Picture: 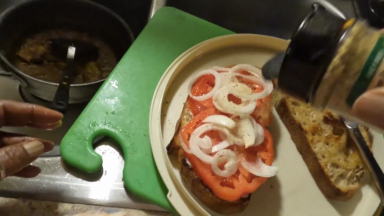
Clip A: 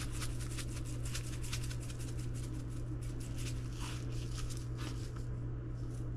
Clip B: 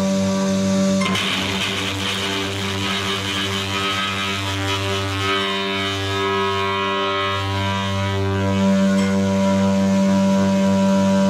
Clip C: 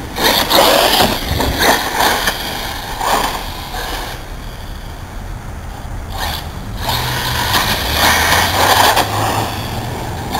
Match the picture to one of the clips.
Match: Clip A